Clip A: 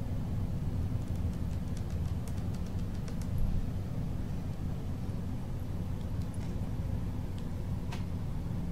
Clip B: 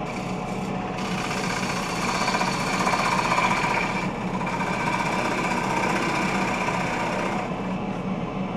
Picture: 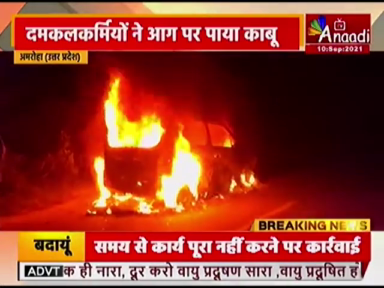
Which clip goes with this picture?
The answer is A